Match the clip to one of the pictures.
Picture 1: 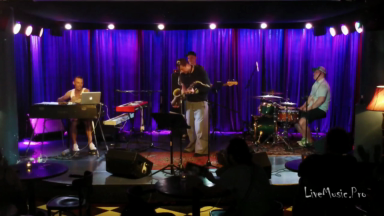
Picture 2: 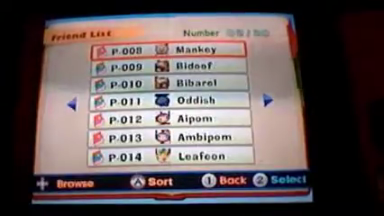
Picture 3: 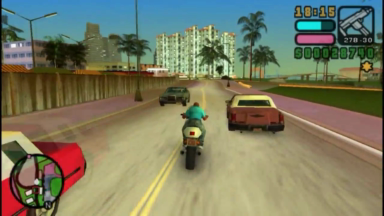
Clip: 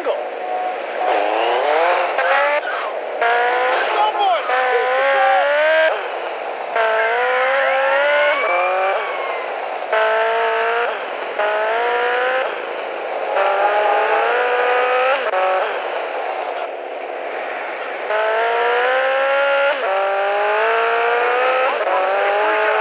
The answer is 3